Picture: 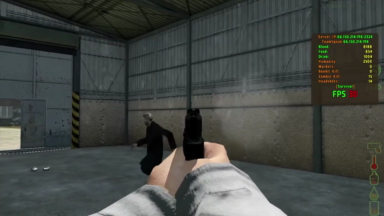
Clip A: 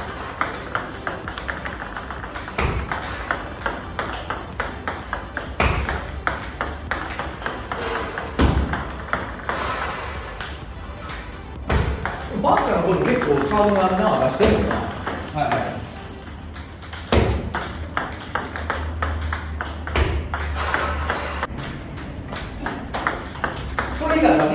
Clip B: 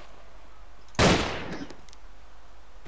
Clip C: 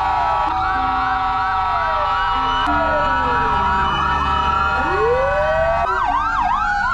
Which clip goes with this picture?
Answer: B